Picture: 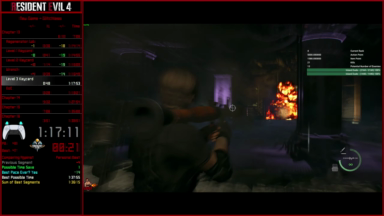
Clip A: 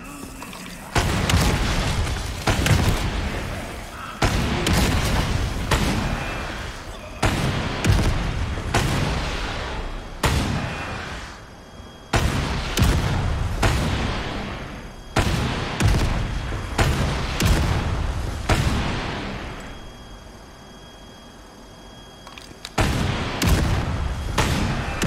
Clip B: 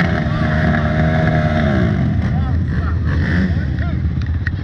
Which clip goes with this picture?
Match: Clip A